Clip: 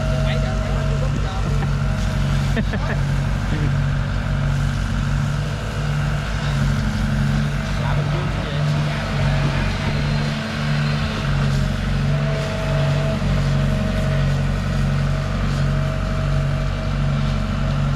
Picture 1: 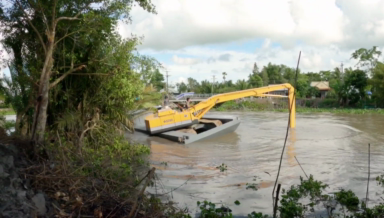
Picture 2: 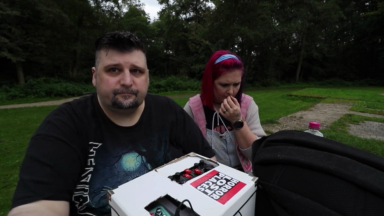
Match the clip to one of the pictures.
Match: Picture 1